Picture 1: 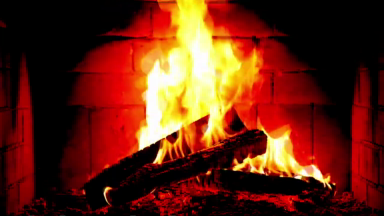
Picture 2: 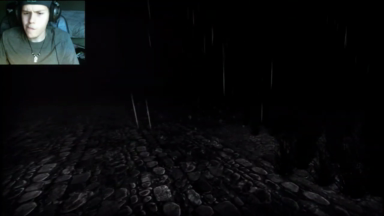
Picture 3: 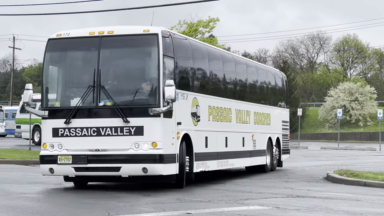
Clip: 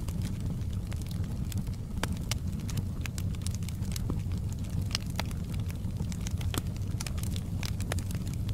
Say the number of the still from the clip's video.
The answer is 1